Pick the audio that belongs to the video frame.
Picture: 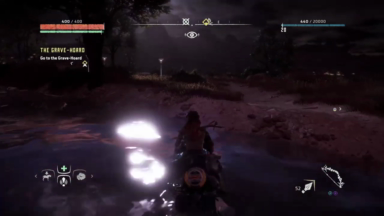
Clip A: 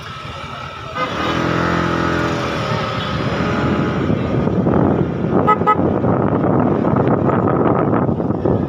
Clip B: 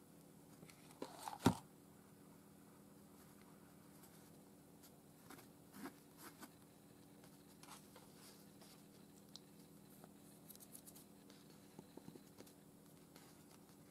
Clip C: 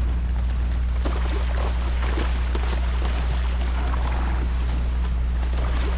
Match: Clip C